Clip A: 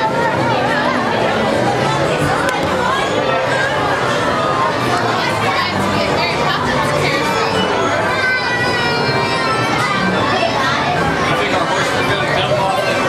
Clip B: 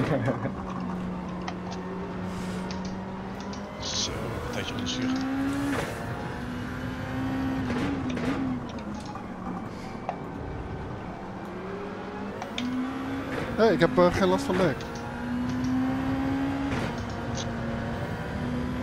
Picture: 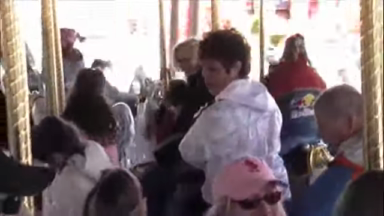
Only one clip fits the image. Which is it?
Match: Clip A